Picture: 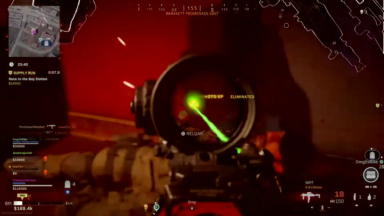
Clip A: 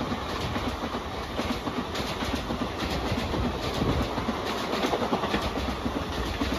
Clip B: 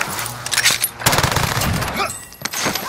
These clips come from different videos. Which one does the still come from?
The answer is B